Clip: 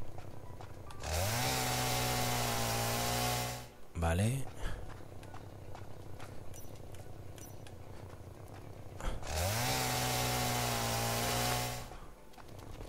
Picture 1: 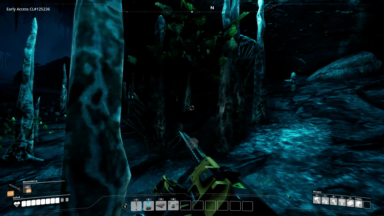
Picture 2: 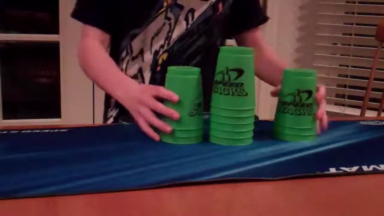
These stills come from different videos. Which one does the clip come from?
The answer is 1